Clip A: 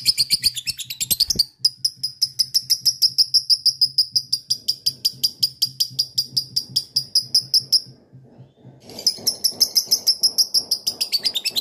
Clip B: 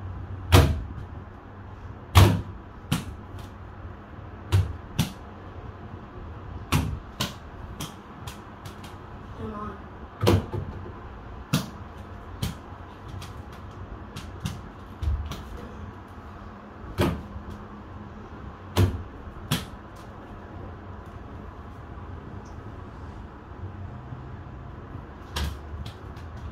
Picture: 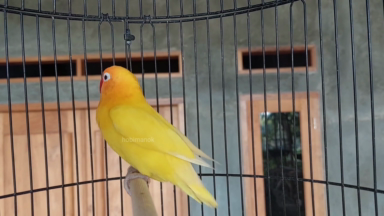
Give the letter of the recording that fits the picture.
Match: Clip A